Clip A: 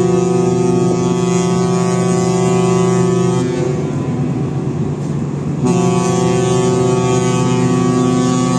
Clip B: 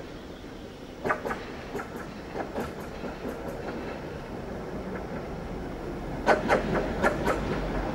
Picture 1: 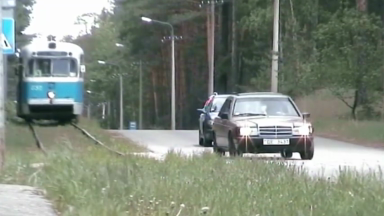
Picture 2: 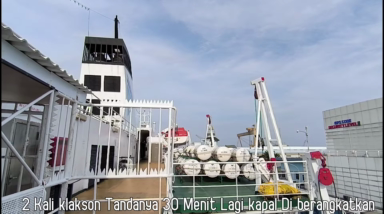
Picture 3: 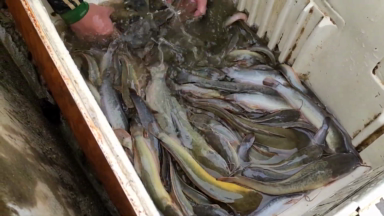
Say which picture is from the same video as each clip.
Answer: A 2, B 1